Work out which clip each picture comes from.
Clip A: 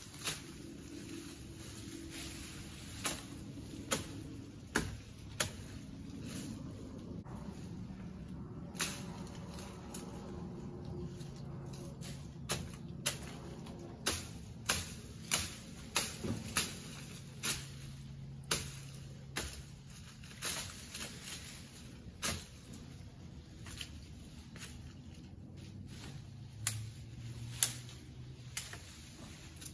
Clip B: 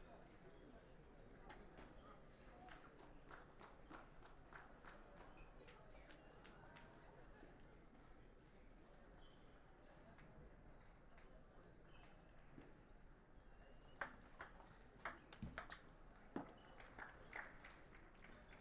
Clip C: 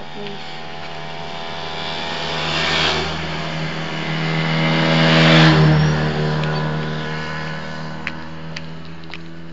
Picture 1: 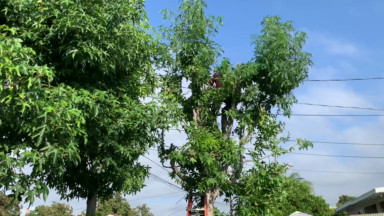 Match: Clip A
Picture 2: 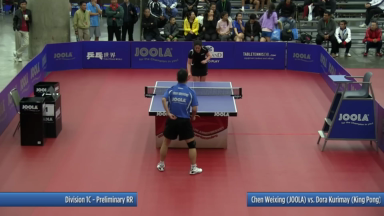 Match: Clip B